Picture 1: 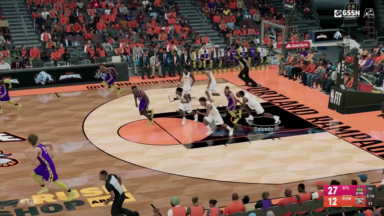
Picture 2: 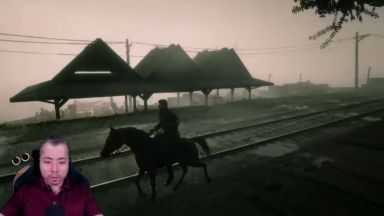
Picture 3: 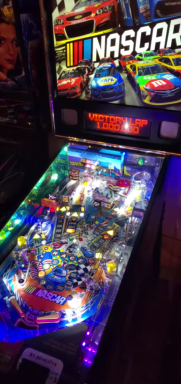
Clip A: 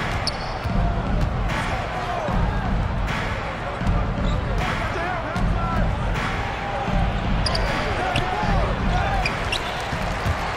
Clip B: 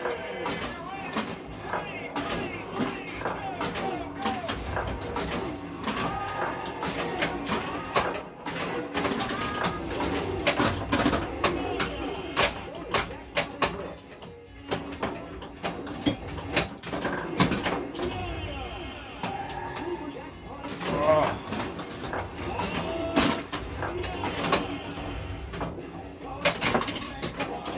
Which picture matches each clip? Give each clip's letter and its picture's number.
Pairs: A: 1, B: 3